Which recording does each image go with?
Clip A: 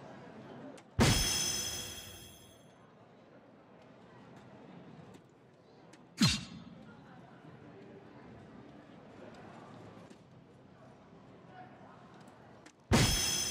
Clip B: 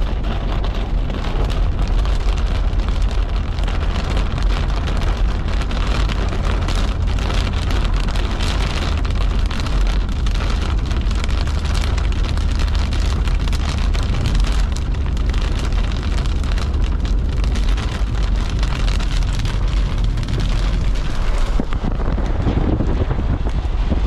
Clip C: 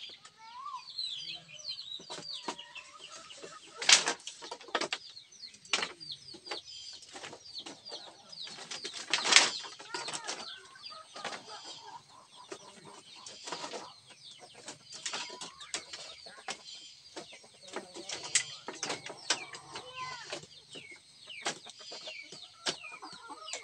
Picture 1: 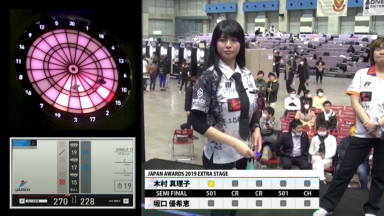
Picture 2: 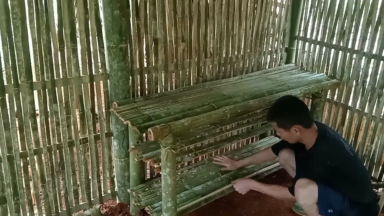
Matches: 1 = A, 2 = C